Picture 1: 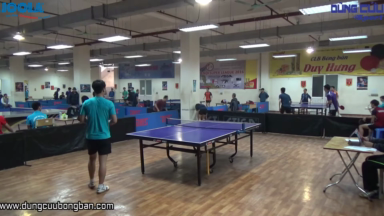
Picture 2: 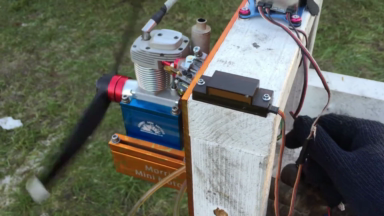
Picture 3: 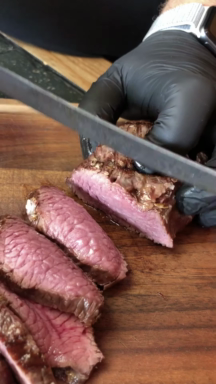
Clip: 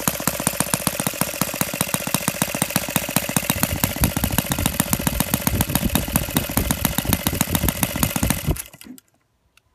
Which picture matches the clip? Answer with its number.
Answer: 2